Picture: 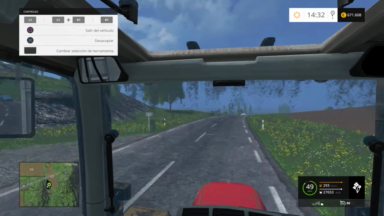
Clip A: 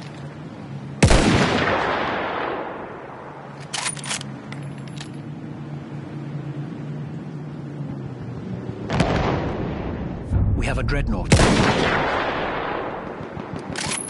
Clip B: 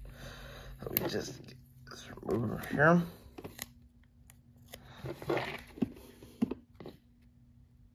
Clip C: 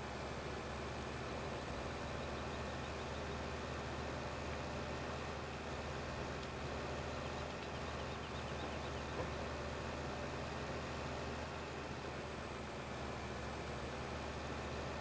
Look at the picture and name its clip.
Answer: C